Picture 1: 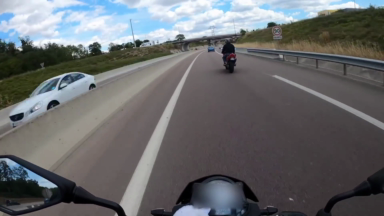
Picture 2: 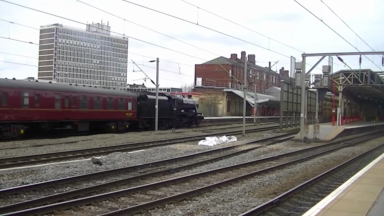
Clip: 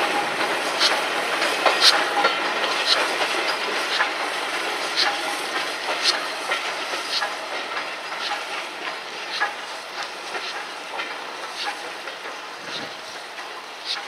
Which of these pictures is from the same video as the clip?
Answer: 2